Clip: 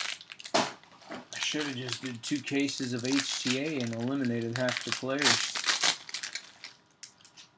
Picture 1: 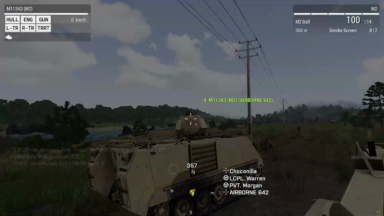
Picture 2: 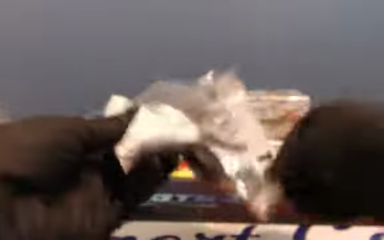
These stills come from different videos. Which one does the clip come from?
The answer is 2